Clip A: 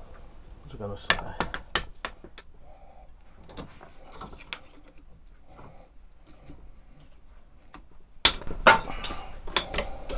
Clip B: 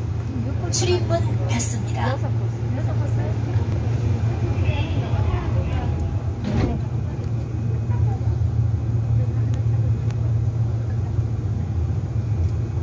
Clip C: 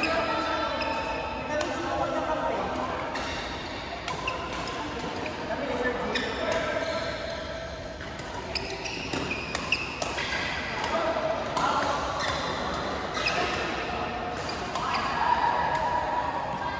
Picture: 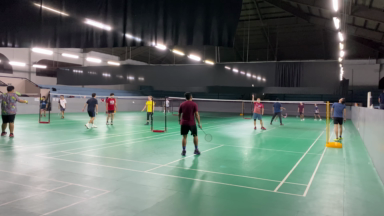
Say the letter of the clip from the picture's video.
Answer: C